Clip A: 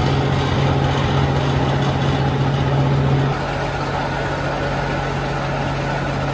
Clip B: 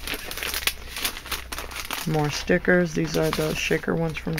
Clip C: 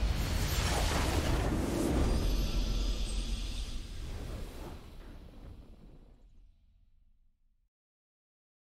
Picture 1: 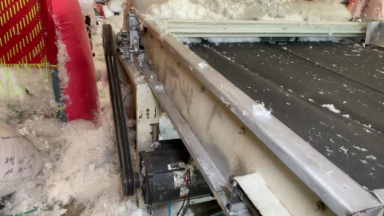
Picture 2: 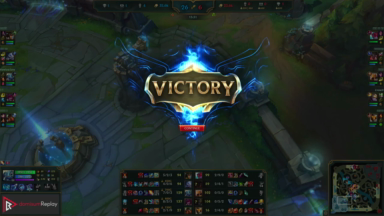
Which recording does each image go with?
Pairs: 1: A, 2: C